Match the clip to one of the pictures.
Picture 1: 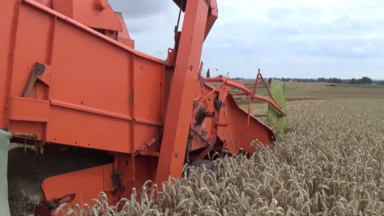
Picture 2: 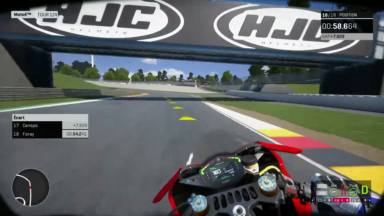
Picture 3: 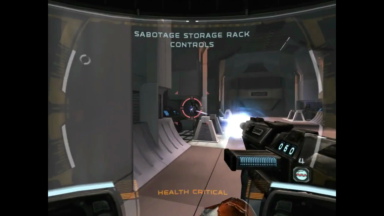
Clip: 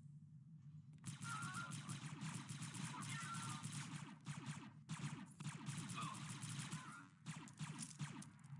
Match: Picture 3